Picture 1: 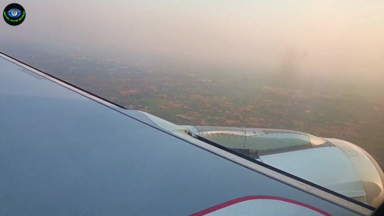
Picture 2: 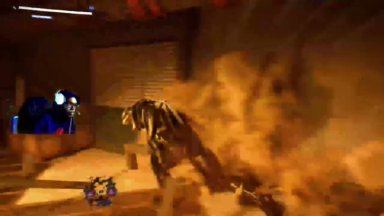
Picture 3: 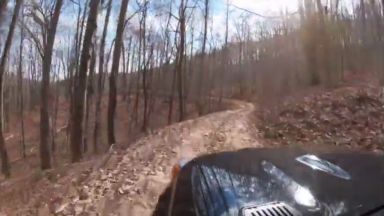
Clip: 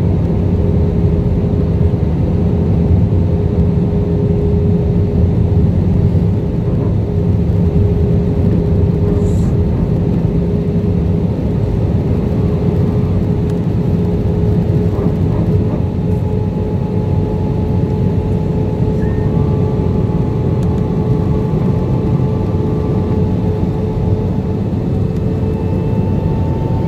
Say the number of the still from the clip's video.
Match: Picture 1